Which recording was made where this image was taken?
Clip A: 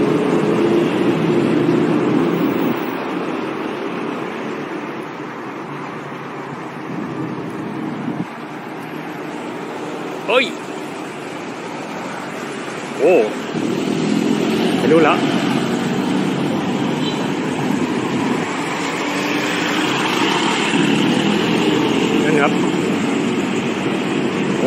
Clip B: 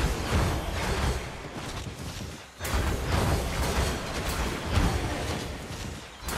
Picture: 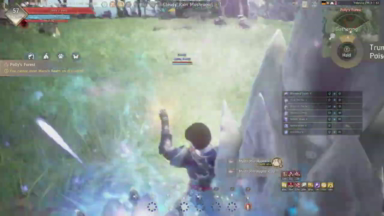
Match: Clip B